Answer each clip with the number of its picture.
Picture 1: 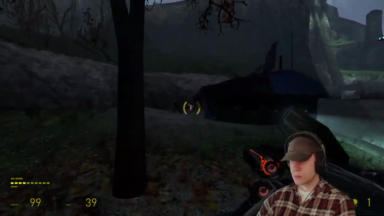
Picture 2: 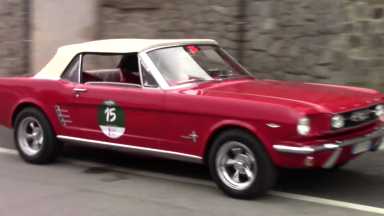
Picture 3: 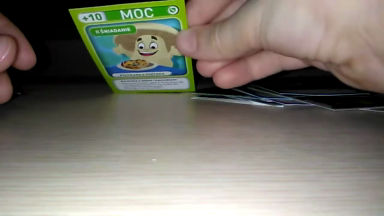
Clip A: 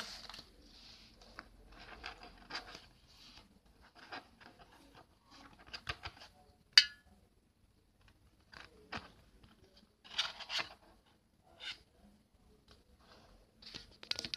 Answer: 3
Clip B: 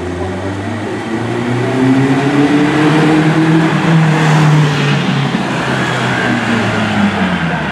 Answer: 2